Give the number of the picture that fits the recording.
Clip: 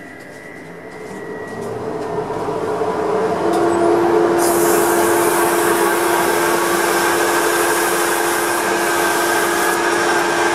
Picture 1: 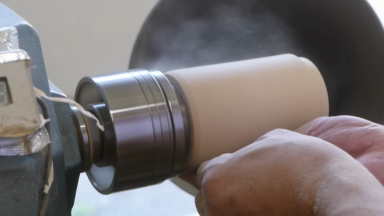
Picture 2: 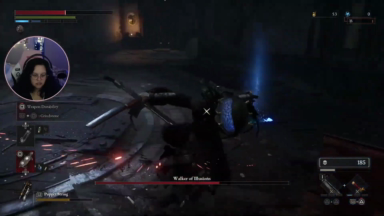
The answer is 1